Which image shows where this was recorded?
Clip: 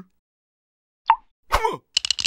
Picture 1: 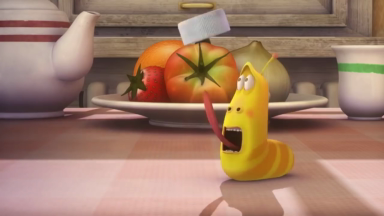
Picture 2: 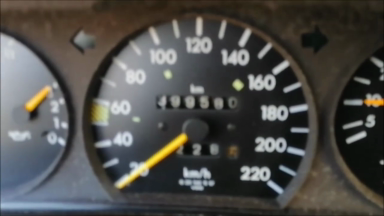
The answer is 1